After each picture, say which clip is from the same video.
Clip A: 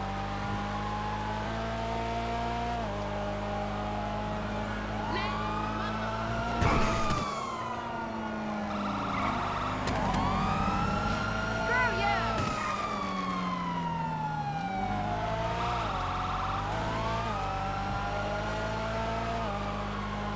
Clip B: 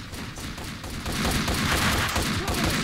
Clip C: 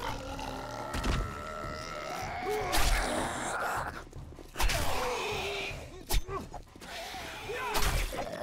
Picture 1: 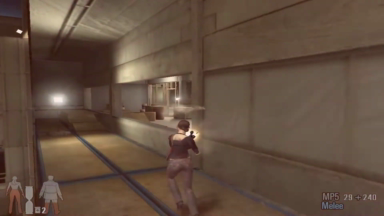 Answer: B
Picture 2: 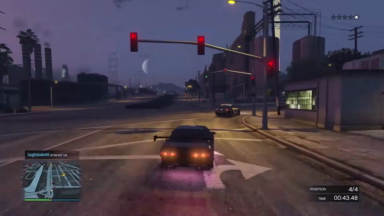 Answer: A